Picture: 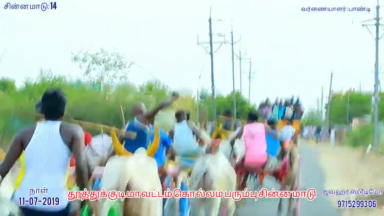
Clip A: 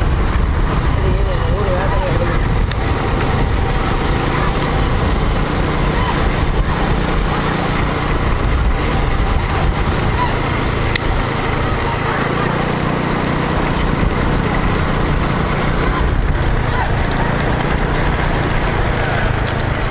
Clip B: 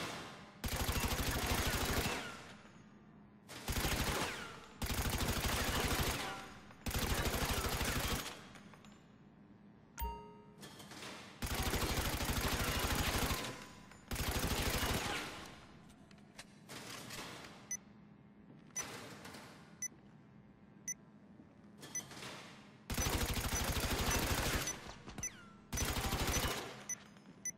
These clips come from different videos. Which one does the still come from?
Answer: A